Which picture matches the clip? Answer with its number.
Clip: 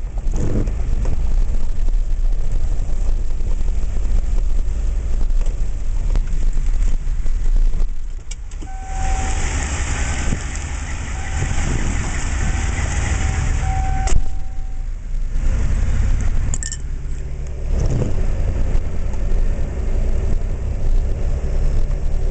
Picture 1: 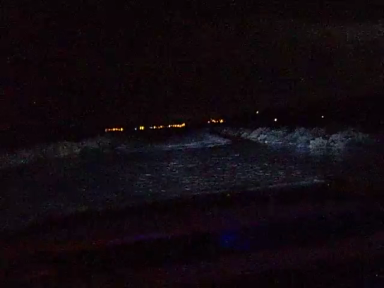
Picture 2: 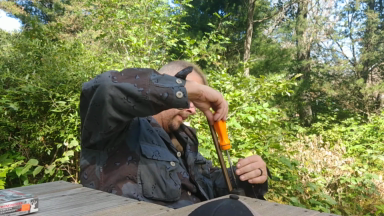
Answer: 1